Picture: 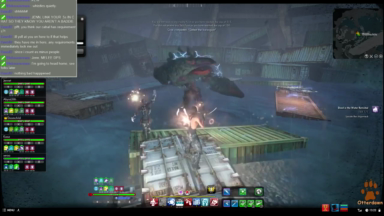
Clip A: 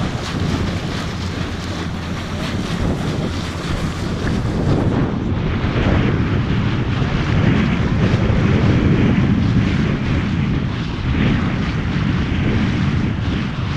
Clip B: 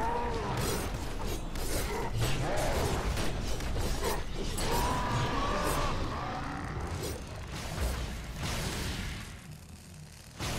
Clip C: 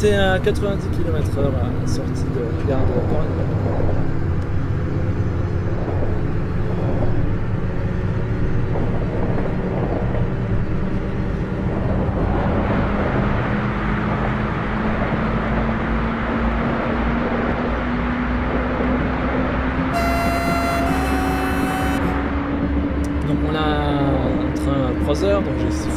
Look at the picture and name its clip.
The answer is B